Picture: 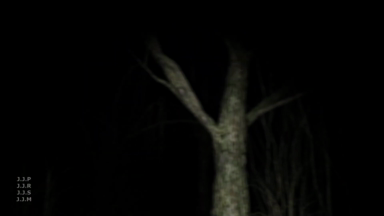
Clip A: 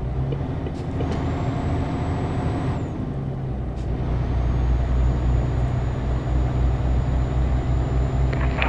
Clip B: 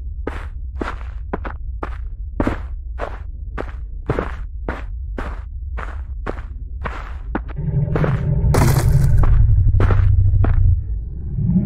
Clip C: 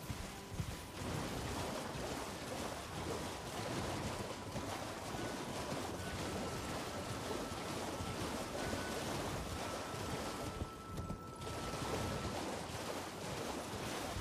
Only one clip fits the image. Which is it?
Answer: B